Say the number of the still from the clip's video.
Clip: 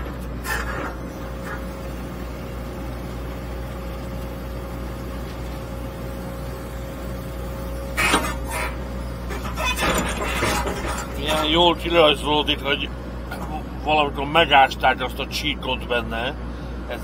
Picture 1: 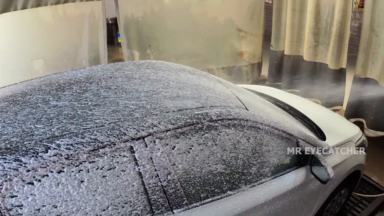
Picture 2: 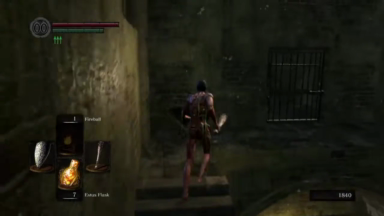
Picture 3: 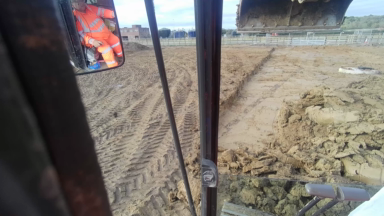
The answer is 3